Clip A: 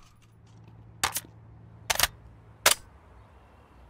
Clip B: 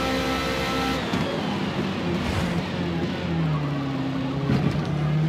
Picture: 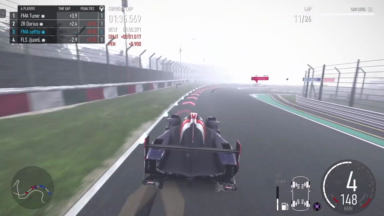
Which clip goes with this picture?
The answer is B